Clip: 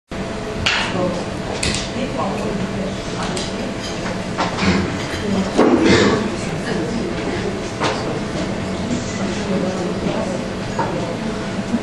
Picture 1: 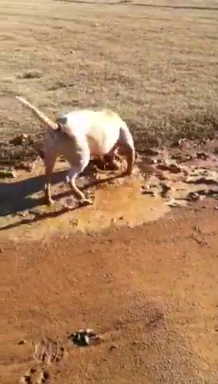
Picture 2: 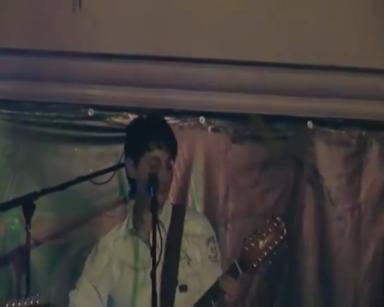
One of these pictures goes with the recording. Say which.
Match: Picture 2